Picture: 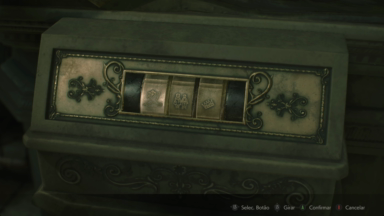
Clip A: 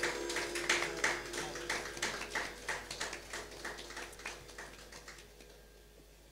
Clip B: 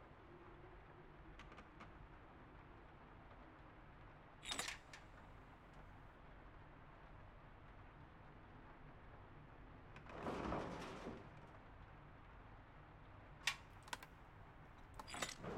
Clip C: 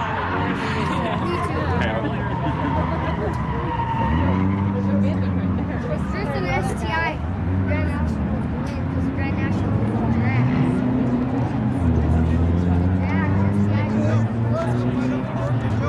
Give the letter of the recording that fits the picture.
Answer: B